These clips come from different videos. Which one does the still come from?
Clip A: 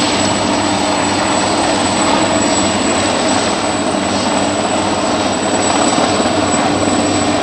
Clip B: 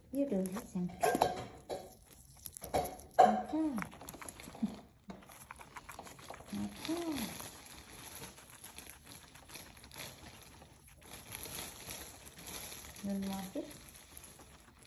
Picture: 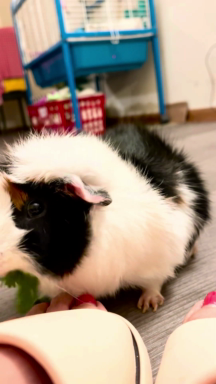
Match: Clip B